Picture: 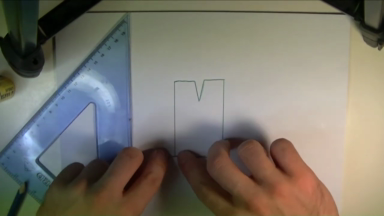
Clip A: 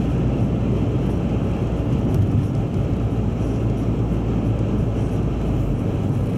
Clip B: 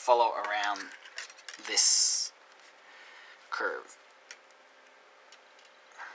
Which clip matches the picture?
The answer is B